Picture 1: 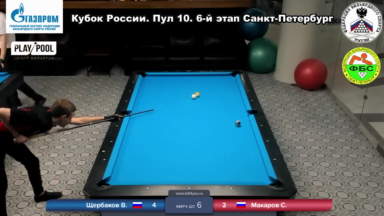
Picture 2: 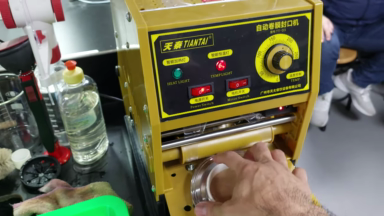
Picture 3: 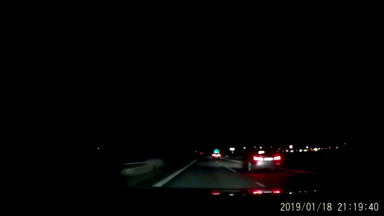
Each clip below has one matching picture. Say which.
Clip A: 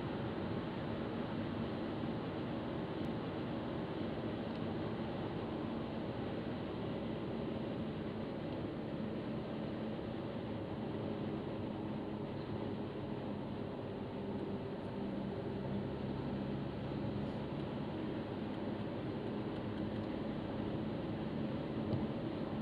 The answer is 3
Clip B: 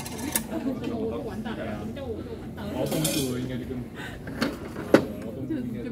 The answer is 2